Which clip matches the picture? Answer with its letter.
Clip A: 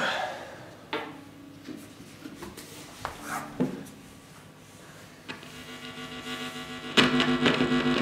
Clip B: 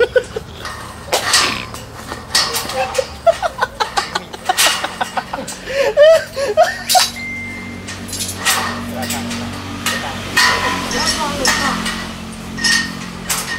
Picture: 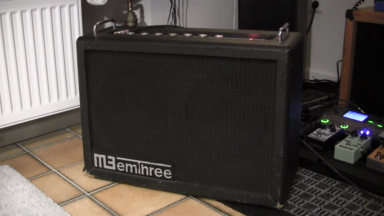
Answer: A